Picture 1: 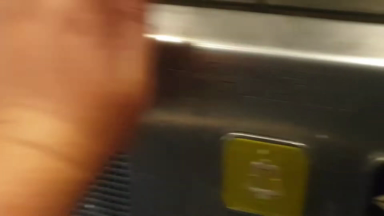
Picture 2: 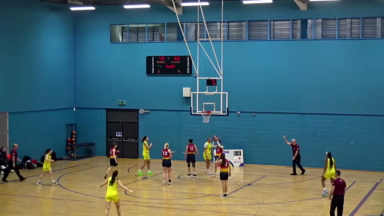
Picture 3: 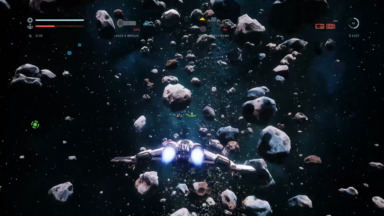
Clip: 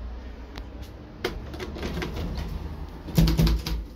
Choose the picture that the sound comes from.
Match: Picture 1